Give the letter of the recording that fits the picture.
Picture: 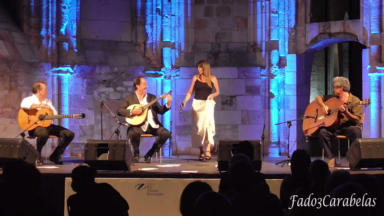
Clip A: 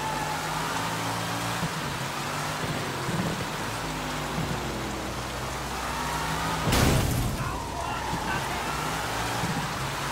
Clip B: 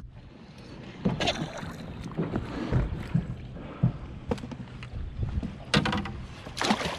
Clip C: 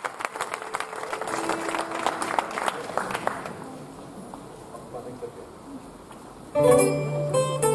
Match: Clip C